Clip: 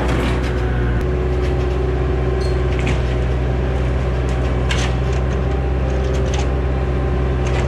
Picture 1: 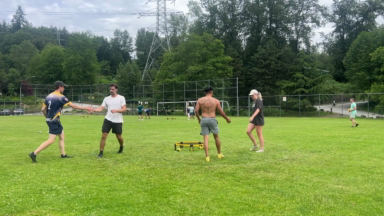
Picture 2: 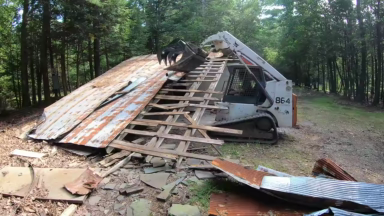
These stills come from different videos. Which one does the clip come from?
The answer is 2